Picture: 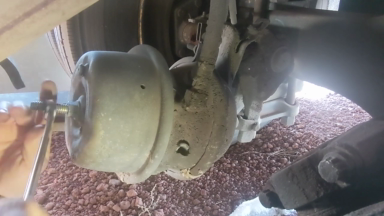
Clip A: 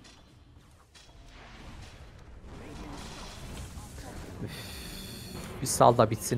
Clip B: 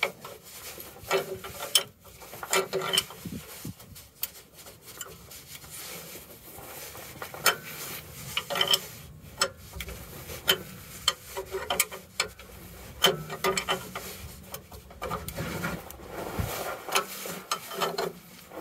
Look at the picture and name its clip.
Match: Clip B